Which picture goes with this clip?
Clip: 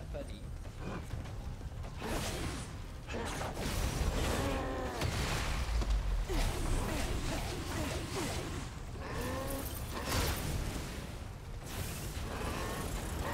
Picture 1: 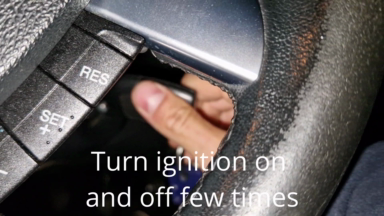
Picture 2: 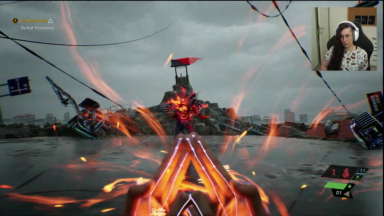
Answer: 2